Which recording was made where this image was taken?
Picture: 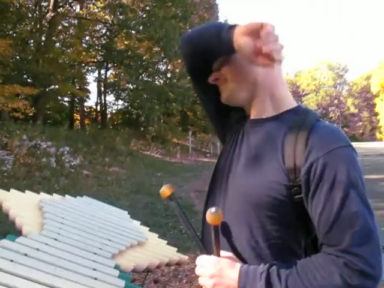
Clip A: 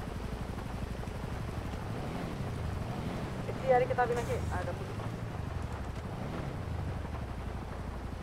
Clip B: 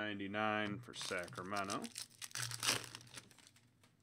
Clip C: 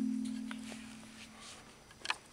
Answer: C